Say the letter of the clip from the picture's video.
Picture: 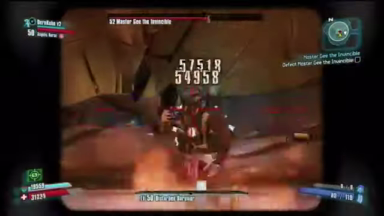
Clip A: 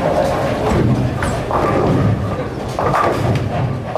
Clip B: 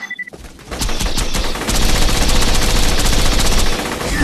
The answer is B